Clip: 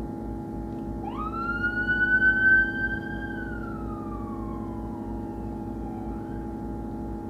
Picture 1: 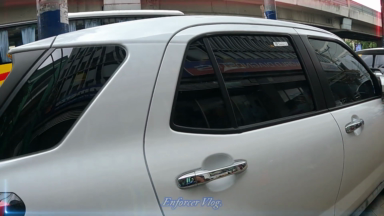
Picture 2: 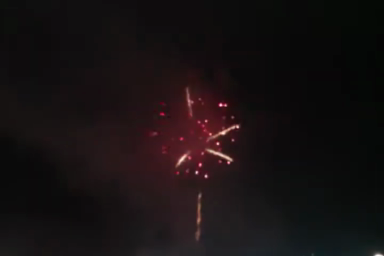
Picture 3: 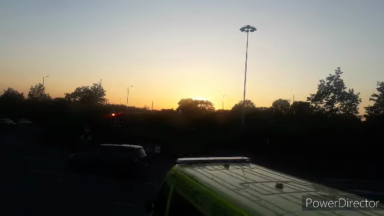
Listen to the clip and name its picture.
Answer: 3